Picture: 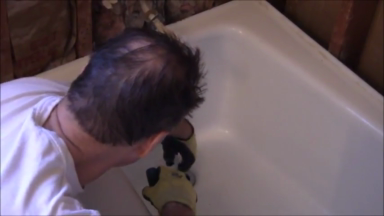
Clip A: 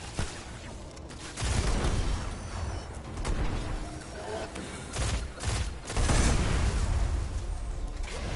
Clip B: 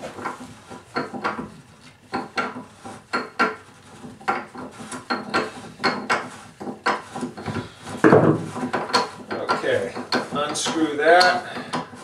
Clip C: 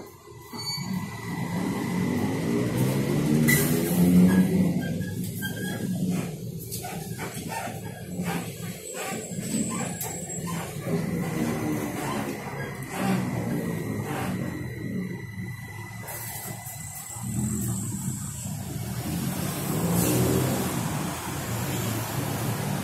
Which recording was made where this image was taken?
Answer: B